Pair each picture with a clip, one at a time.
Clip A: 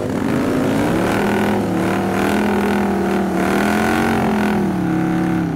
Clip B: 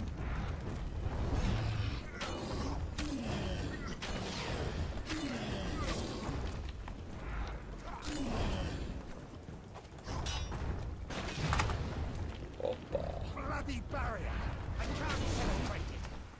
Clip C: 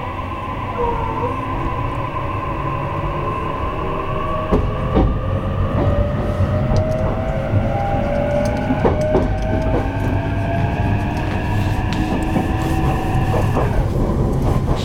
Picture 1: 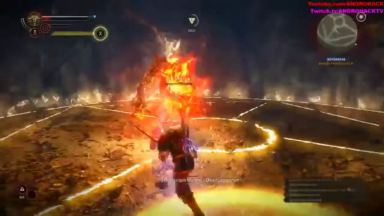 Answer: B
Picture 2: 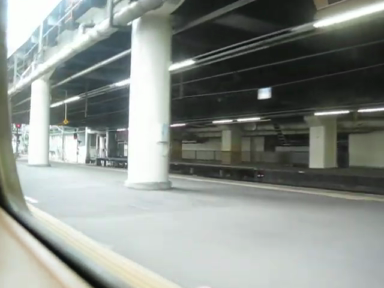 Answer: C